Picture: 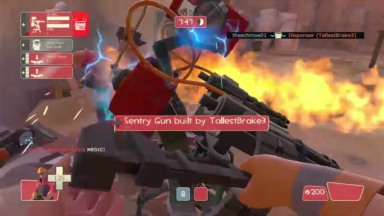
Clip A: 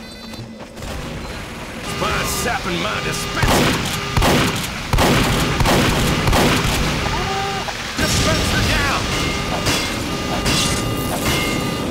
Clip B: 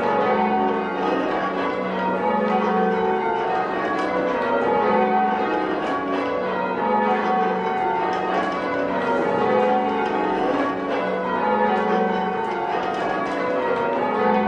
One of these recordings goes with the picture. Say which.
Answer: A